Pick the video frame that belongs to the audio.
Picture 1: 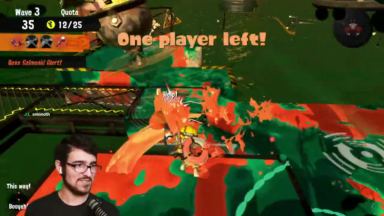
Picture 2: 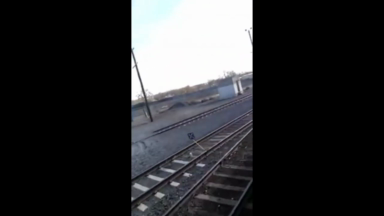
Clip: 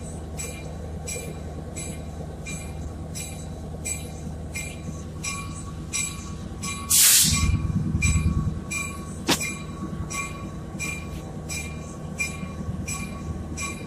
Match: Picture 2